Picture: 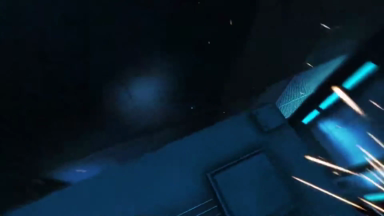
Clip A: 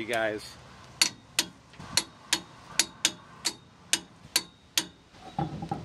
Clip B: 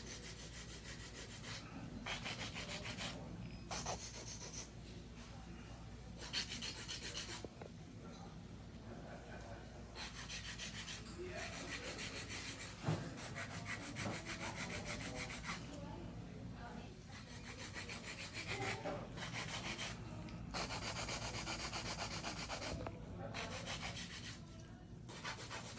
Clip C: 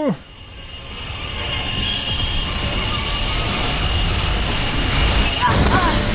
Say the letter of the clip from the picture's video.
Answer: C